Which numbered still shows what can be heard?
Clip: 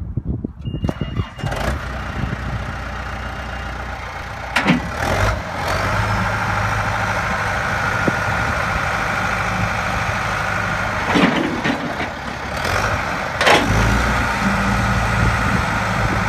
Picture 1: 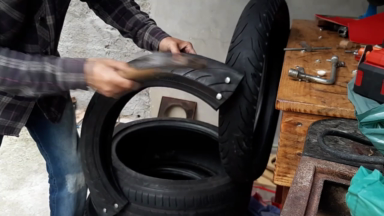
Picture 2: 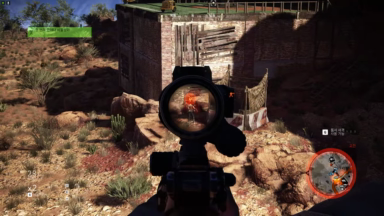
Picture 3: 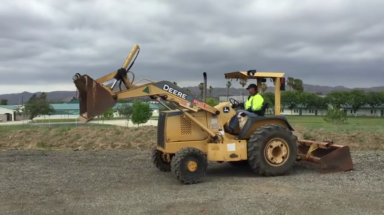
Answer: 3